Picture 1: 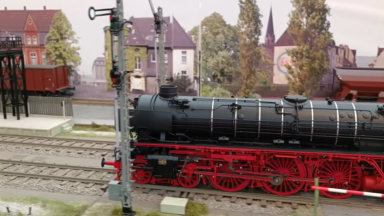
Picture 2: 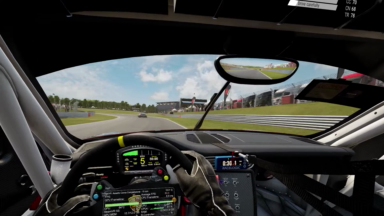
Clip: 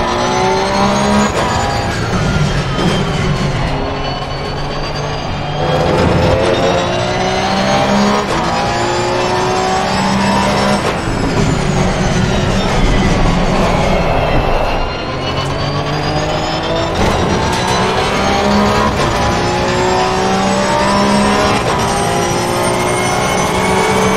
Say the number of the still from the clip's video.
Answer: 2